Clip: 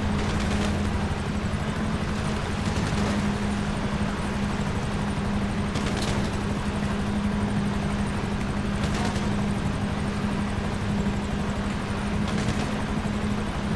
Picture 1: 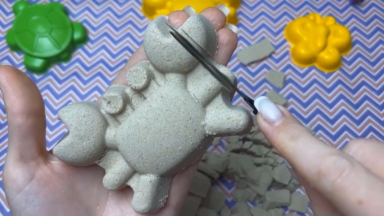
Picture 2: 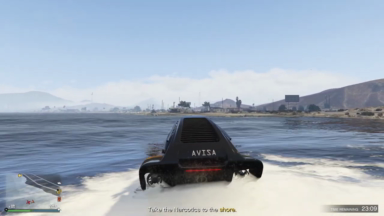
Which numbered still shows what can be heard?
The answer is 2